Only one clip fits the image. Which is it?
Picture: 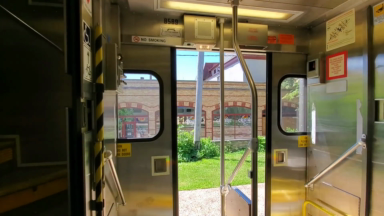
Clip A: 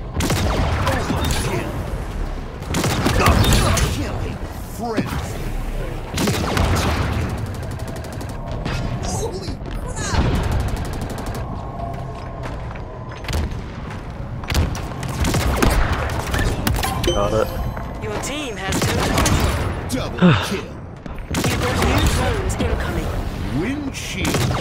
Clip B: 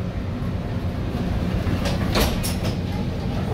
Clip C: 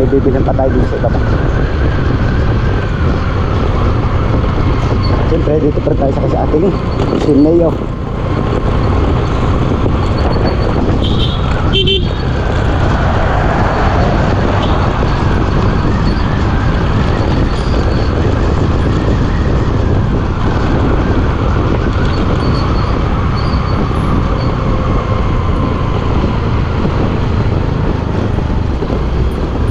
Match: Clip B